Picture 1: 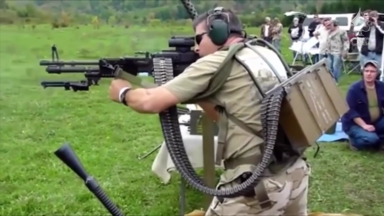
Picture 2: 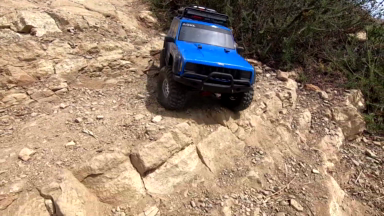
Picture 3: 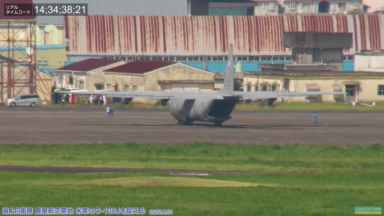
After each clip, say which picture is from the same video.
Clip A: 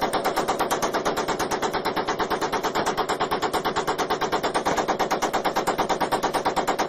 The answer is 1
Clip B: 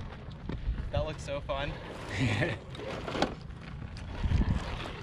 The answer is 2